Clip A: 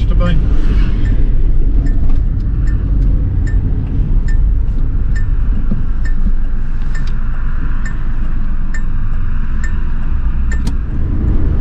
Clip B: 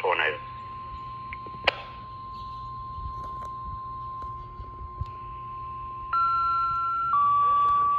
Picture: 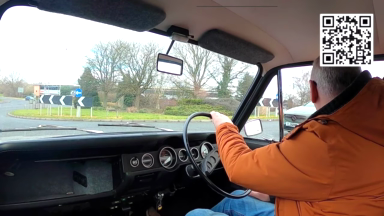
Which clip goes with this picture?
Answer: A